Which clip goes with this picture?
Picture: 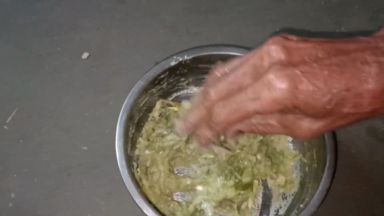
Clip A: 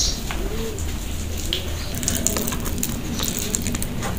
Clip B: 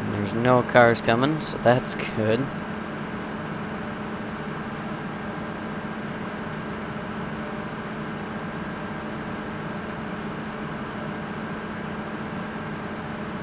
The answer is A